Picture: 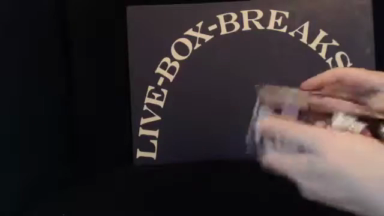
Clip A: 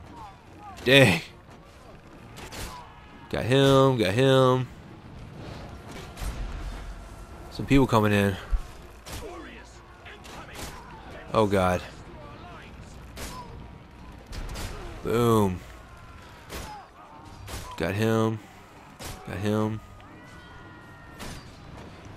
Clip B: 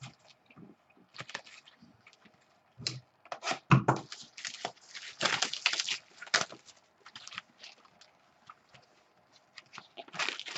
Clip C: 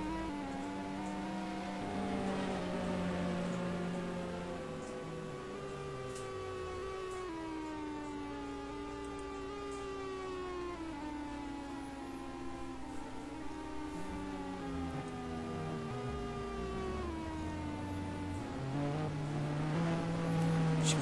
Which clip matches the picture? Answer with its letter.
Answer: B